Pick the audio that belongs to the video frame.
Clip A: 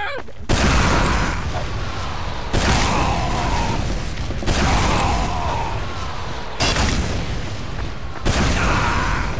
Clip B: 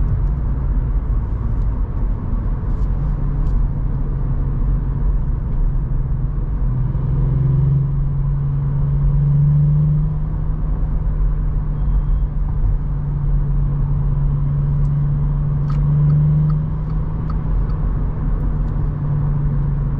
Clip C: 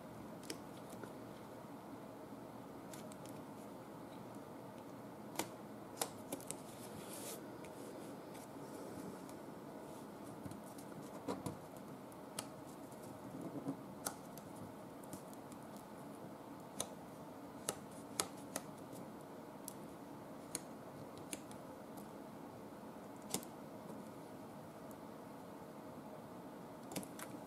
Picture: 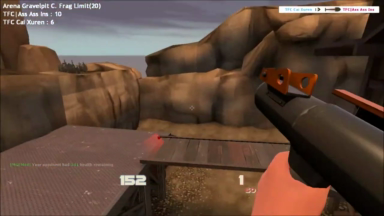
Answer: A